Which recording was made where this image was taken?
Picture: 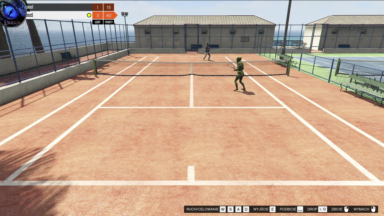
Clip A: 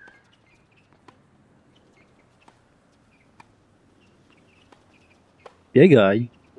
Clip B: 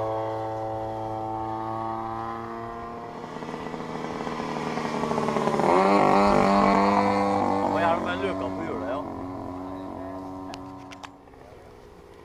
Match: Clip A